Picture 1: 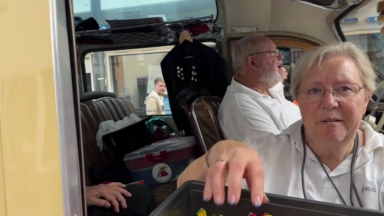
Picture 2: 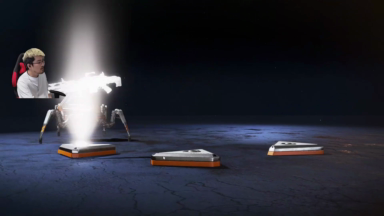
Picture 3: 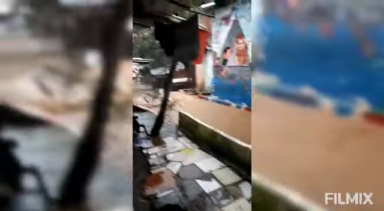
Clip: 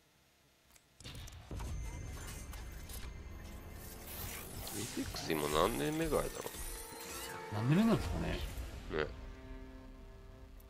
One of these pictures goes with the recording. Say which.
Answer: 2